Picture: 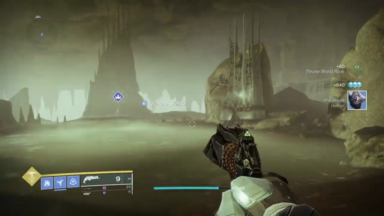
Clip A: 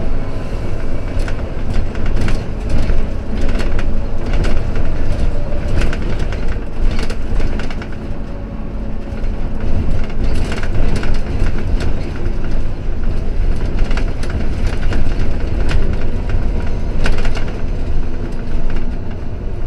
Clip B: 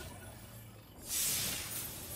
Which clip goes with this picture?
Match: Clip B